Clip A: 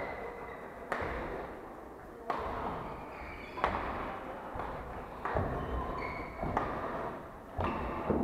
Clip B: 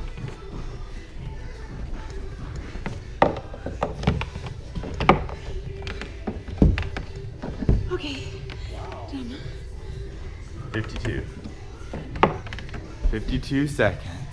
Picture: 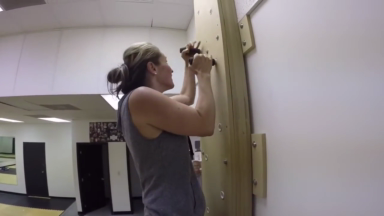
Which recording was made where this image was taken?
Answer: B